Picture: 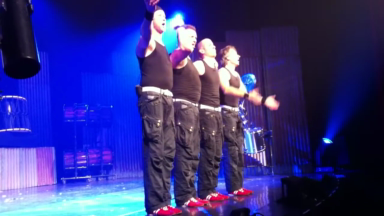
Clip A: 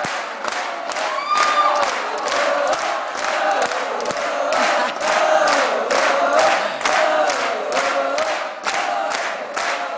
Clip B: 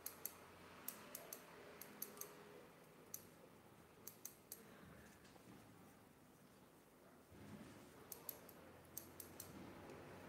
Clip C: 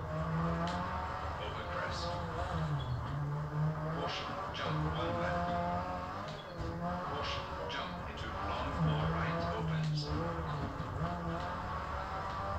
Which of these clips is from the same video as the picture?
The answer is A